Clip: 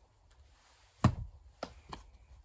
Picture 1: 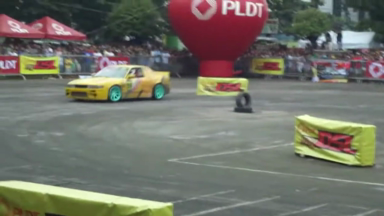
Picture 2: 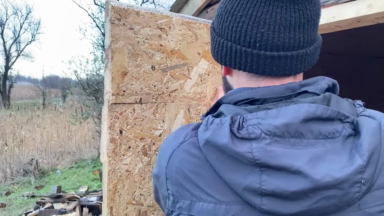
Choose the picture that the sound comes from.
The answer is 2